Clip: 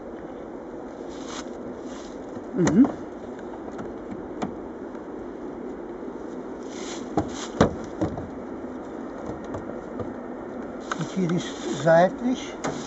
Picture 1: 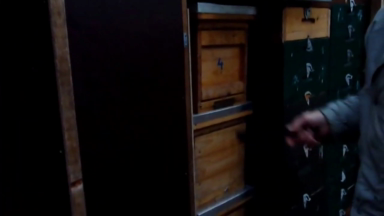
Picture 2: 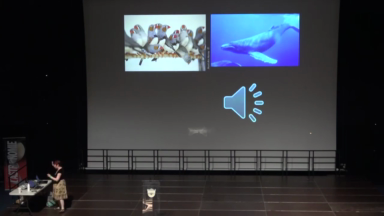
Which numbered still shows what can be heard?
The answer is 1